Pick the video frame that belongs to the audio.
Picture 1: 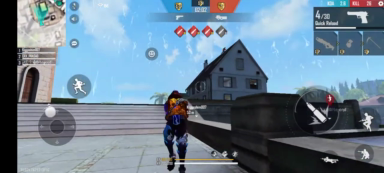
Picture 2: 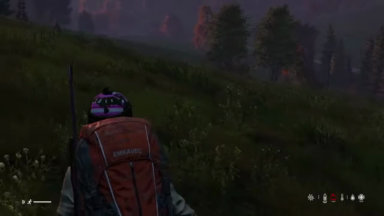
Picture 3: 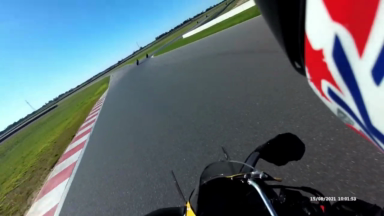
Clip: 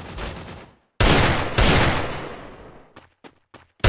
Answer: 1